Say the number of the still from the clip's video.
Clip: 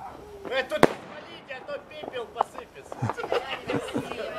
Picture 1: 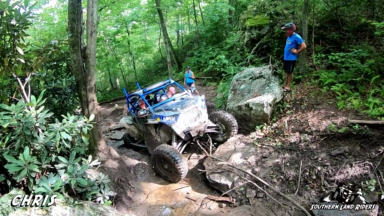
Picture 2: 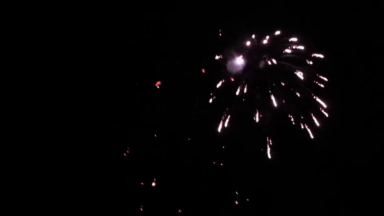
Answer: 2